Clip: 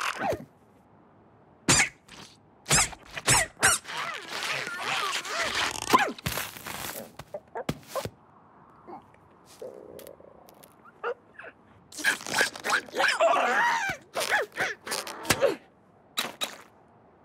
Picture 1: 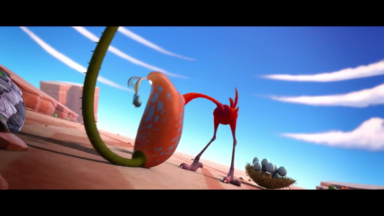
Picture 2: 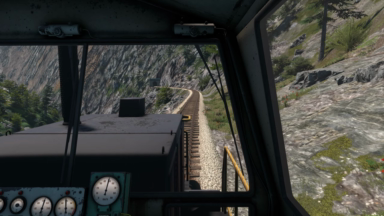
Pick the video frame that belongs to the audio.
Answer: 1